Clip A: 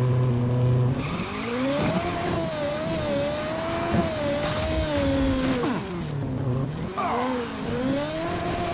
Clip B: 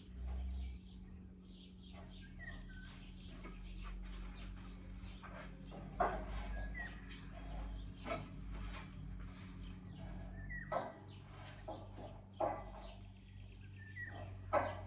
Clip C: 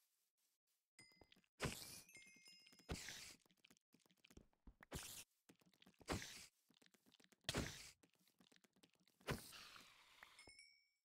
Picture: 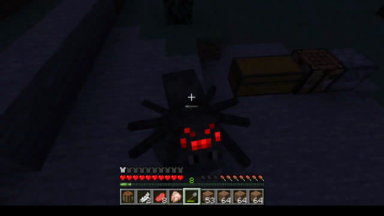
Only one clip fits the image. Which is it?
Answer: C